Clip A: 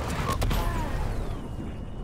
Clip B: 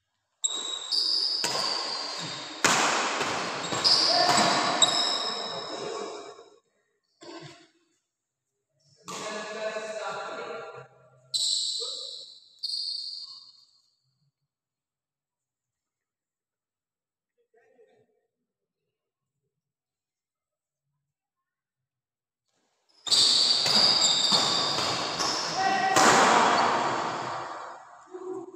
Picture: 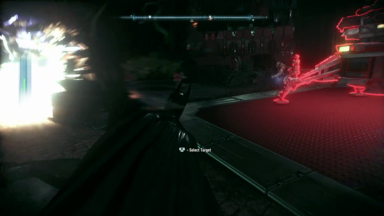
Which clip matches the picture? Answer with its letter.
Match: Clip A